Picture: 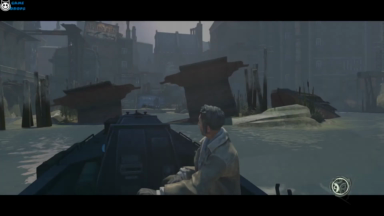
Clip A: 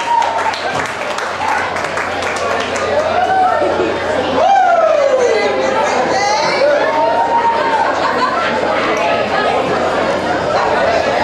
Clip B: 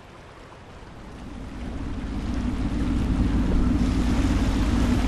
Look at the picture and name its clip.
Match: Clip B